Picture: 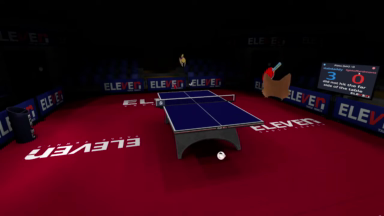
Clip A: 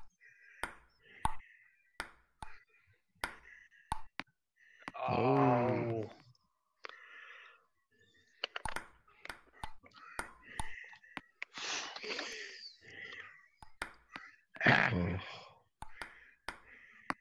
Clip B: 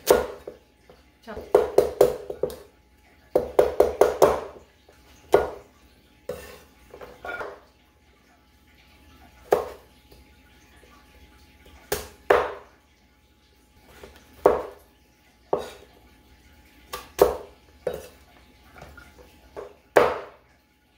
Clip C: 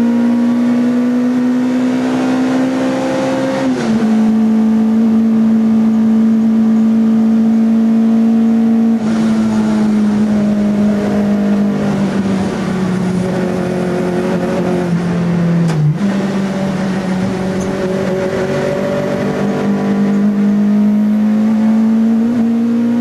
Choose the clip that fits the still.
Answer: A